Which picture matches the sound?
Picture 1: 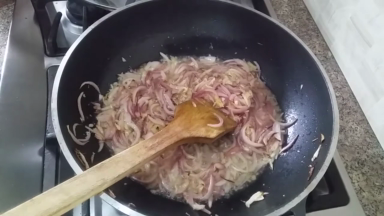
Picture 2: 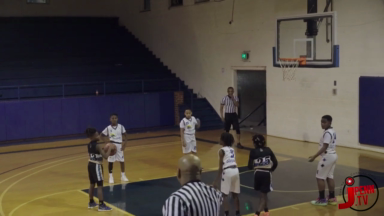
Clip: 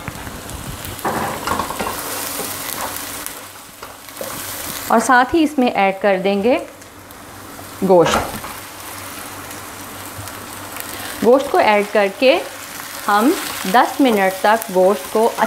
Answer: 1